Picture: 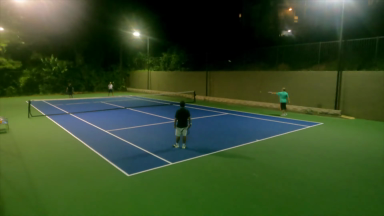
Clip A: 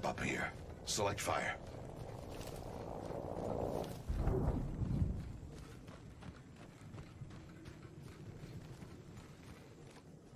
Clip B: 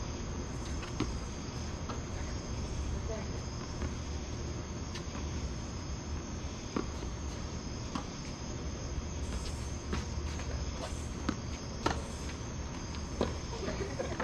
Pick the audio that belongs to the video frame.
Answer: B